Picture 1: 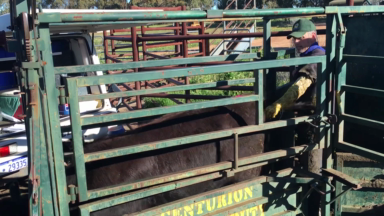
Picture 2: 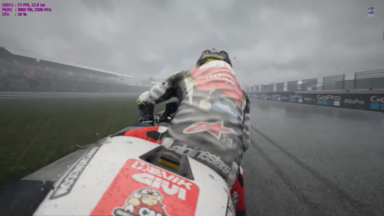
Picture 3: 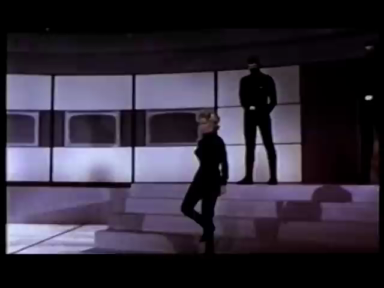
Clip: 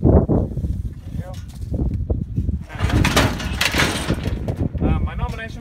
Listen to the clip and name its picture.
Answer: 1